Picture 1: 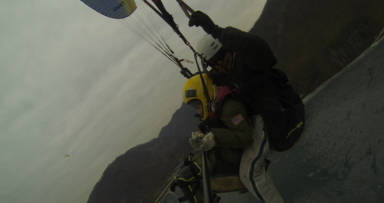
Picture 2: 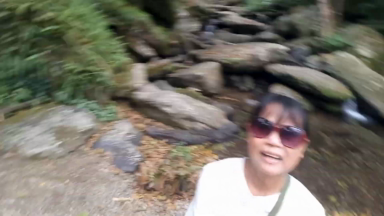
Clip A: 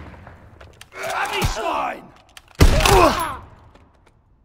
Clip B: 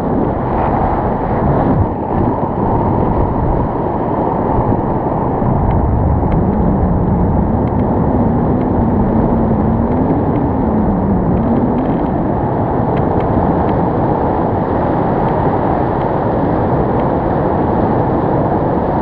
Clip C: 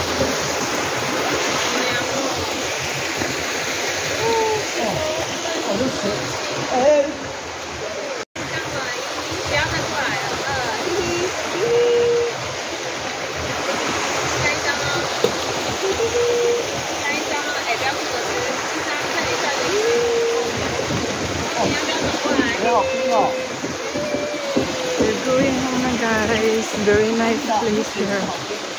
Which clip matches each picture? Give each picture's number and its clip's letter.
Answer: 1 B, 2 C